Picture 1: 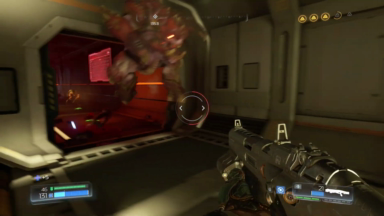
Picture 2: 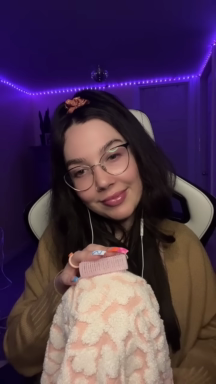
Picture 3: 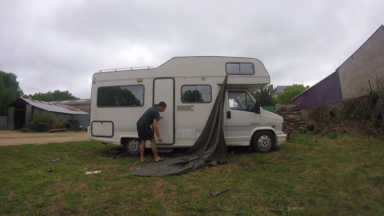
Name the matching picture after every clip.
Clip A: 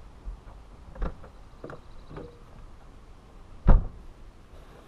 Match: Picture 3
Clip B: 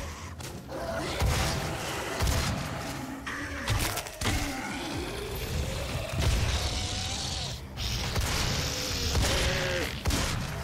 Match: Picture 1